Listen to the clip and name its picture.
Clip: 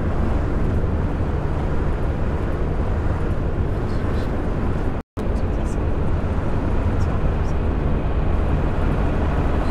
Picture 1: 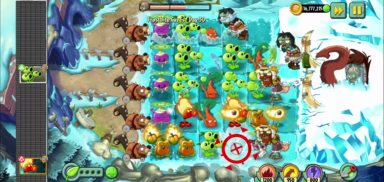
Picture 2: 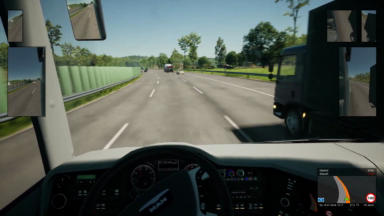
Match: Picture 2